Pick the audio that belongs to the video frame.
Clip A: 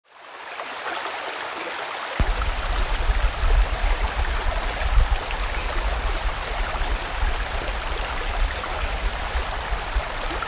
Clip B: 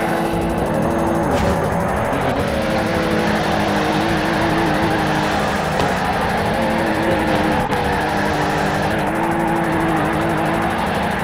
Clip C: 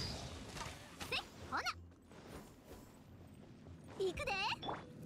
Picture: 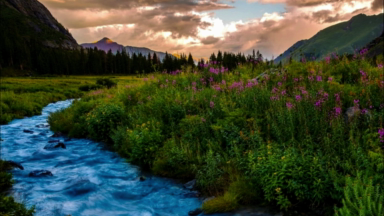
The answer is A